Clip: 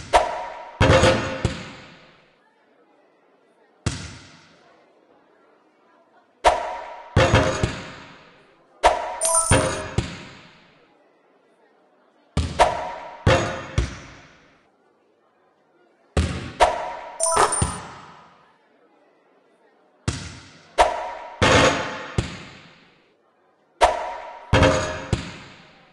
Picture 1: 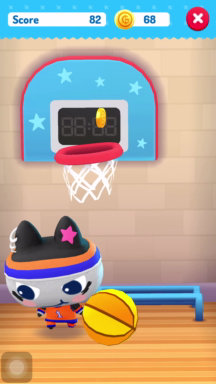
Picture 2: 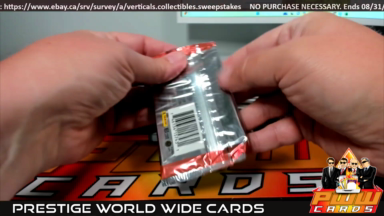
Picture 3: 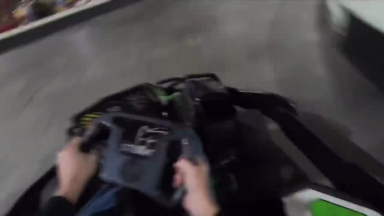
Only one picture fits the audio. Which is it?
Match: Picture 1